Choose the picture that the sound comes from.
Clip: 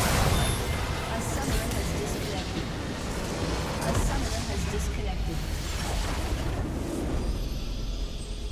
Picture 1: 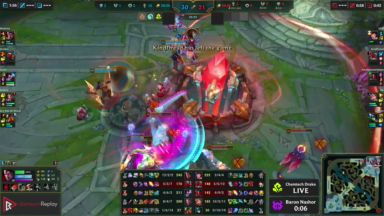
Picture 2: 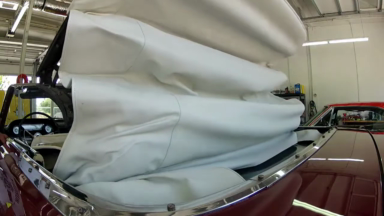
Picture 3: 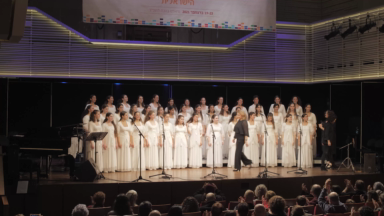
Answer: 1